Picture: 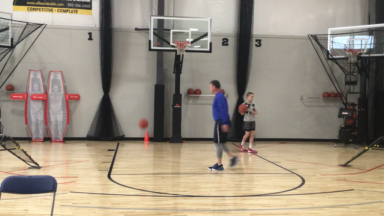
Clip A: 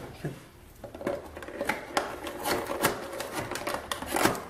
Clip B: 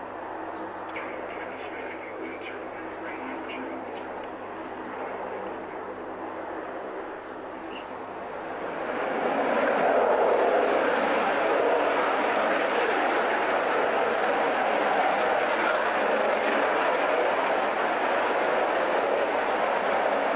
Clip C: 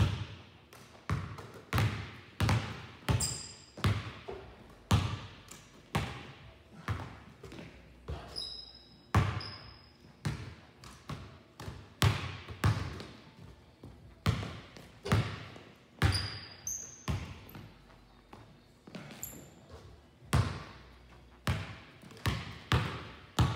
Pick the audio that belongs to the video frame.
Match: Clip C